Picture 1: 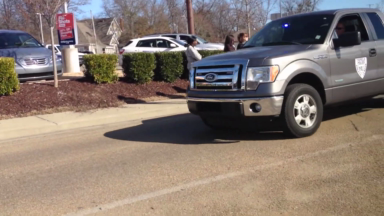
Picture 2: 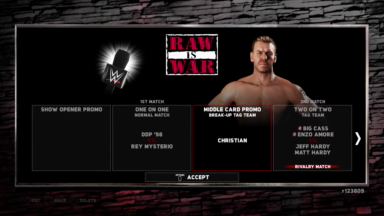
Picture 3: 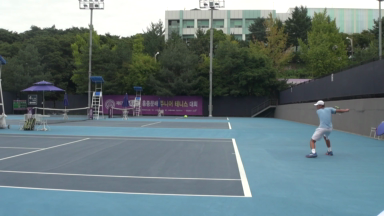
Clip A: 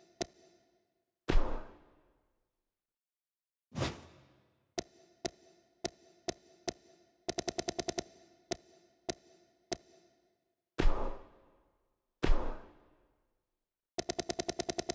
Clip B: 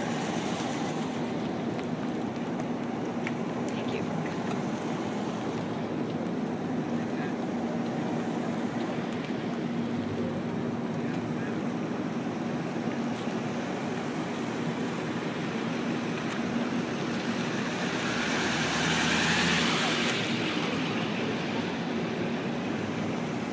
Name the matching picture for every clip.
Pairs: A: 2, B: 1